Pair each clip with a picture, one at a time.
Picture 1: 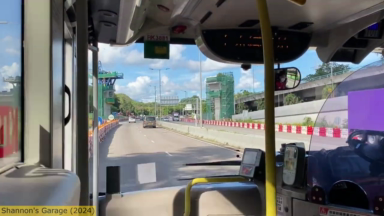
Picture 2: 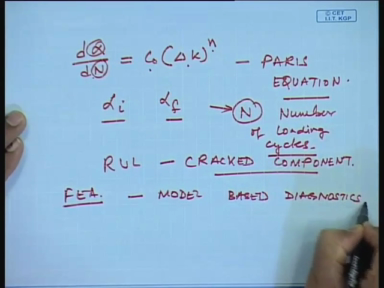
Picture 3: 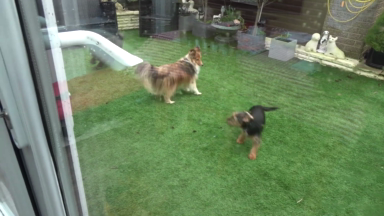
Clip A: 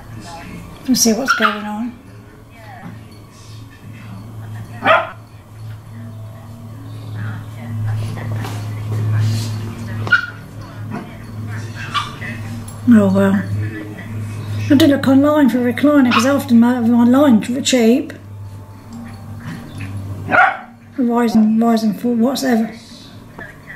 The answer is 3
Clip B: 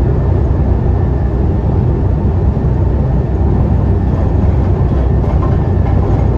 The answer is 1